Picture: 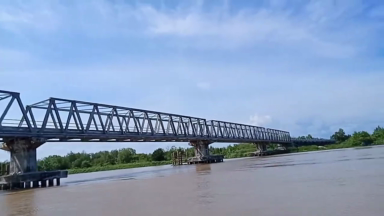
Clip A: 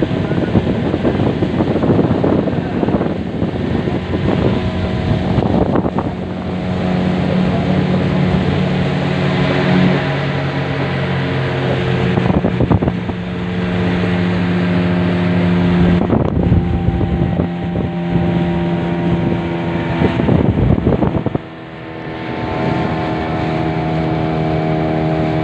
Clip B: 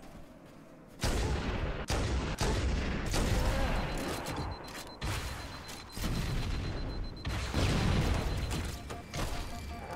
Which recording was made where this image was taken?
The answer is A